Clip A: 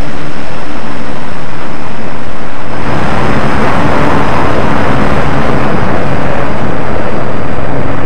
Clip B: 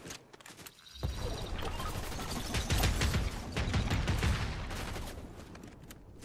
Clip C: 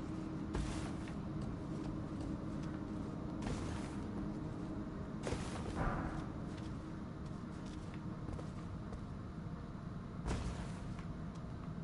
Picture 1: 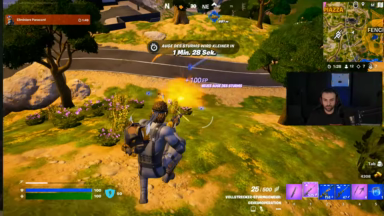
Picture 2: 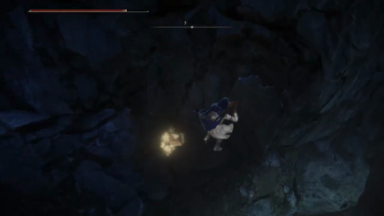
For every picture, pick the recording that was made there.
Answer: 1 B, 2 C